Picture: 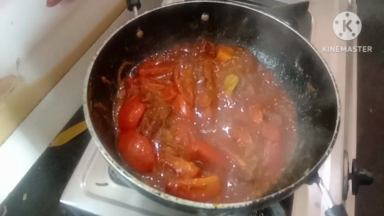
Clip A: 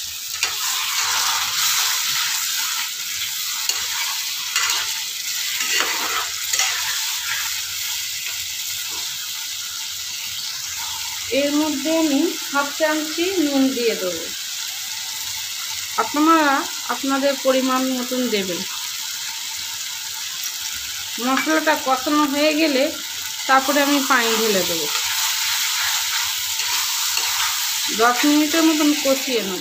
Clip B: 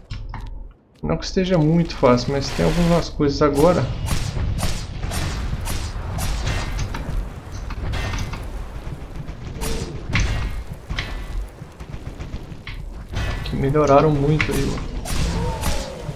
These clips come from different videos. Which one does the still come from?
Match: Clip A